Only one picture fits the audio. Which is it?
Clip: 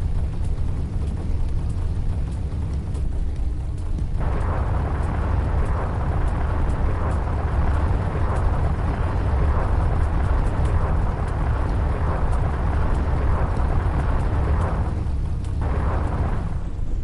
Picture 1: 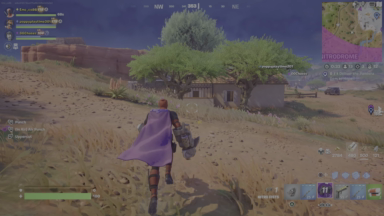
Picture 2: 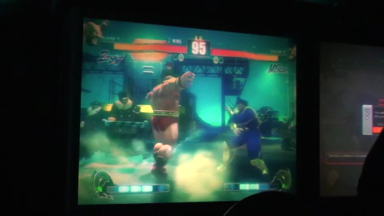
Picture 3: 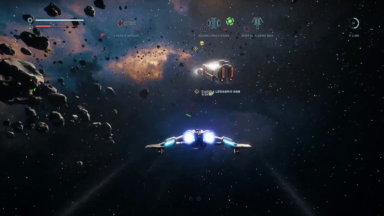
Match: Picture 3